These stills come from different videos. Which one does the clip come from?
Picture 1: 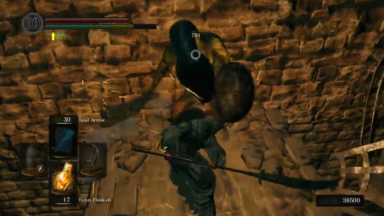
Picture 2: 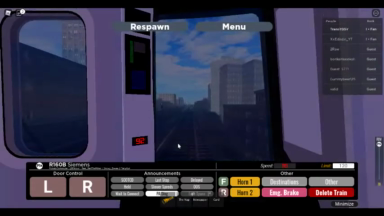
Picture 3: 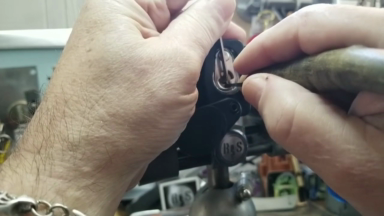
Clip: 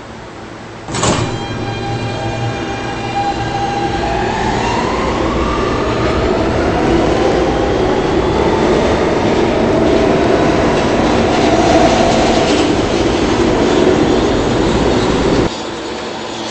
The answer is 2